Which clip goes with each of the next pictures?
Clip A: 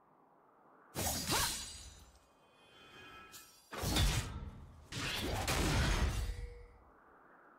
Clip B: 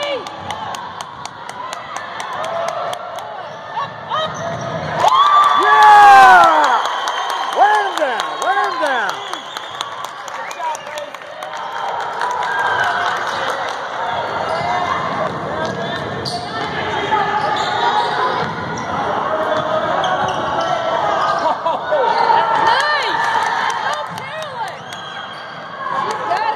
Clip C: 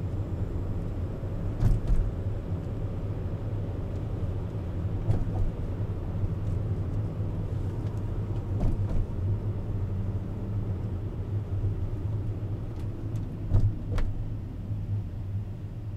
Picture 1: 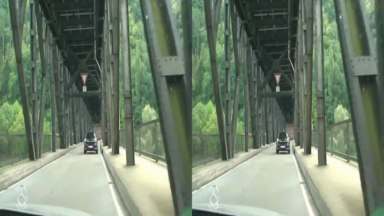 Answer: C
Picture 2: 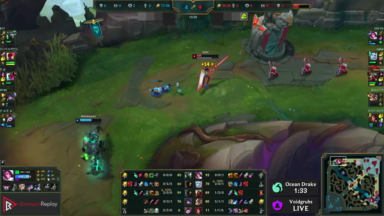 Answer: A